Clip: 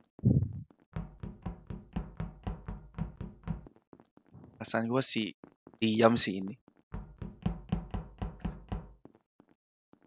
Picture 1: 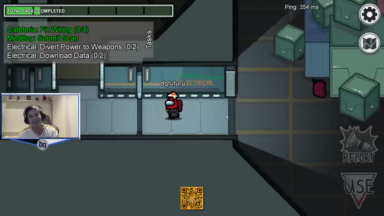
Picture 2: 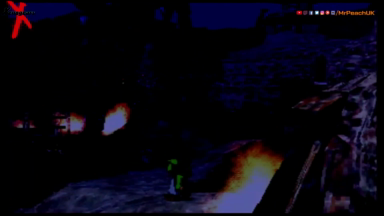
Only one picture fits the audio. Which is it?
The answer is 1